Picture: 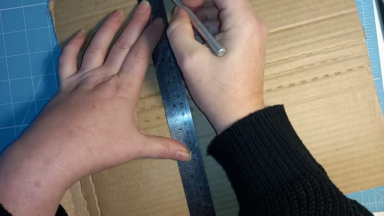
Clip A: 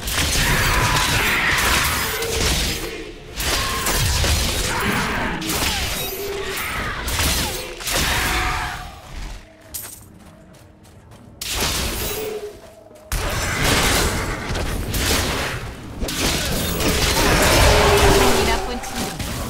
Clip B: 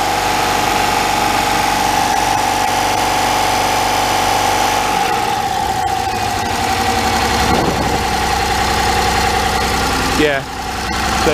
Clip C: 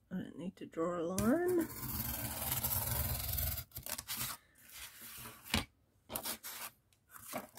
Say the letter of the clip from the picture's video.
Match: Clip C